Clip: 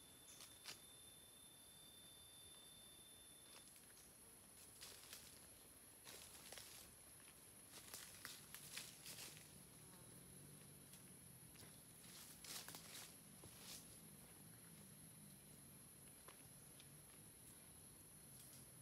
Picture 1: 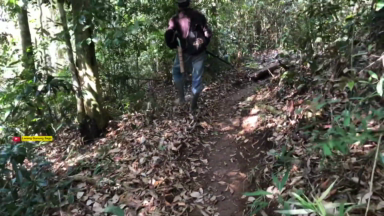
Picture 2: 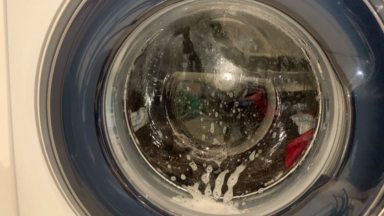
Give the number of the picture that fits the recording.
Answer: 1